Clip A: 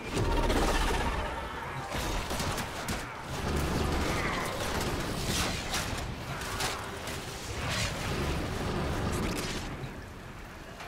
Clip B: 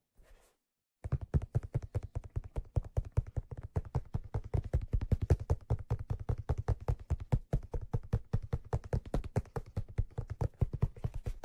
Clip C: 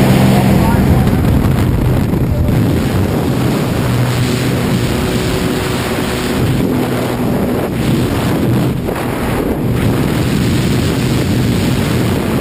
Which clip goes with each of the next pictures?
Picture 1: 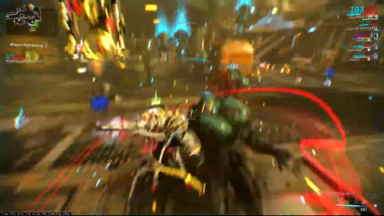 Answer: A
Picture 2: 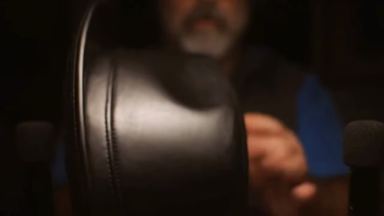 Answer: B